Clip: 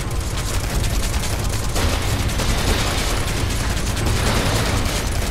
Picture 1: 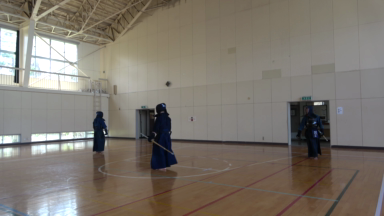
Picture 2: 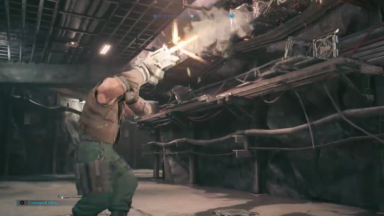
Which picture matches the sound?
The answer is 2